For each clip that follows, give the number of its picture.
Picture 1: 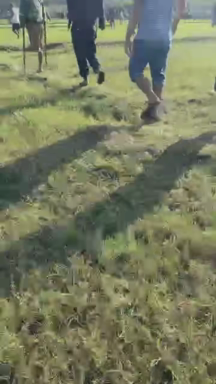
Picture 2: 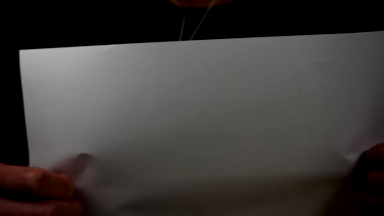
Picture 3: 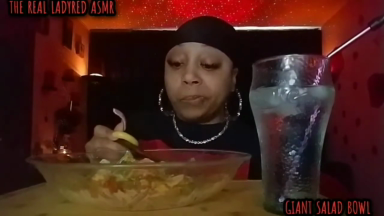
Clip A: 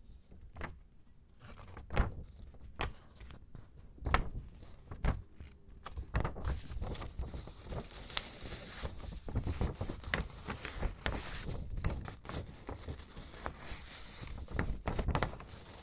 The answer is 2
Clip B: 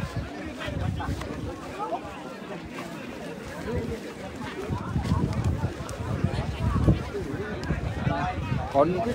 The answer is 1